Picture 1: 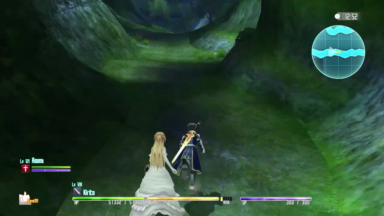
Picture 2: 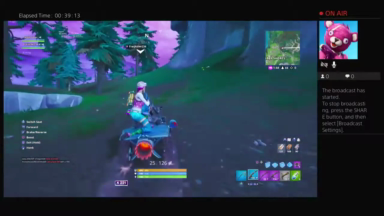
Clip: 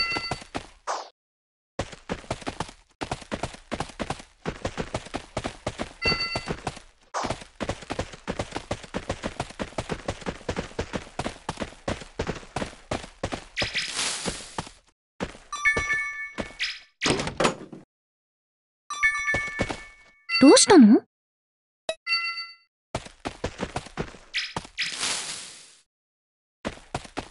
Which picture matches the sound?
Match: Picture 1